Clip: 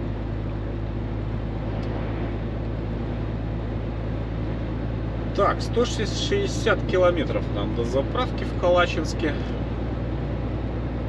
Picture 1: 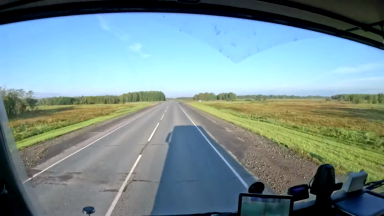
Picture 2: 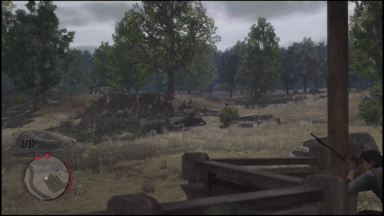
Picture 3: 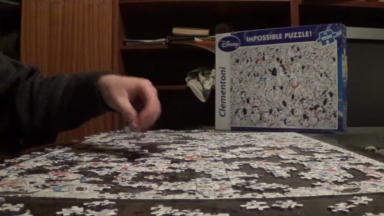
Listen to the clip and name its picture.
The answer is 1